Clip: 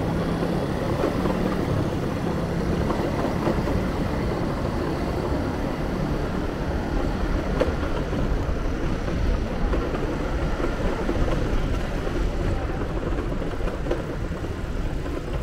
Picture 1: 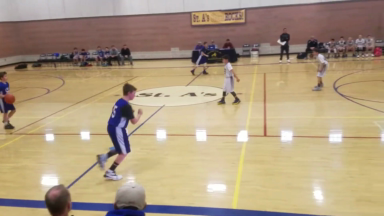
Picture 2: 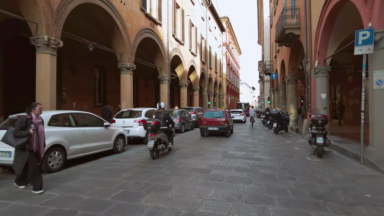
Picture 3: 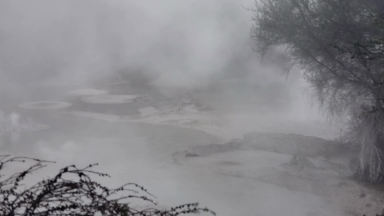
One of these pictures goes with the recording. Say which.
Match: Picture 2